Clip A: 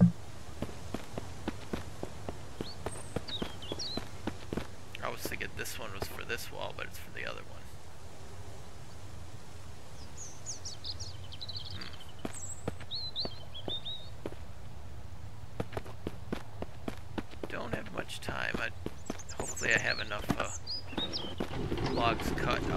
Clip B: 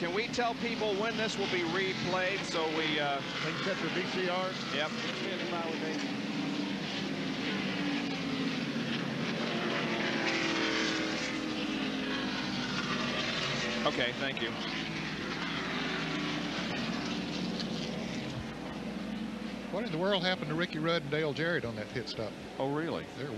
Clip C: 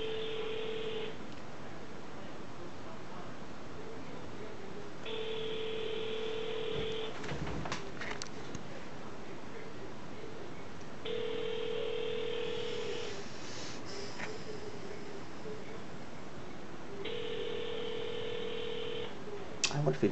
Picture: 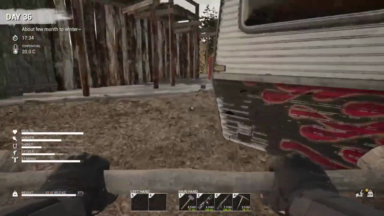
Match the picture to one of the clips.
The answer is A